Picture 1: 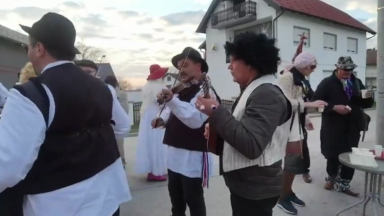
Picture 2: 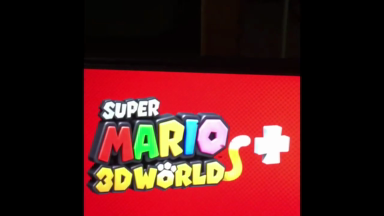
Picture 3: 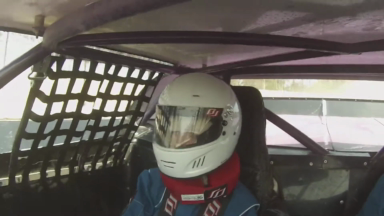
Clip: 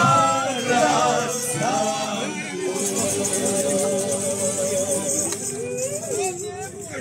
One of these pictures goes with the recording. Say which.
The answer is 1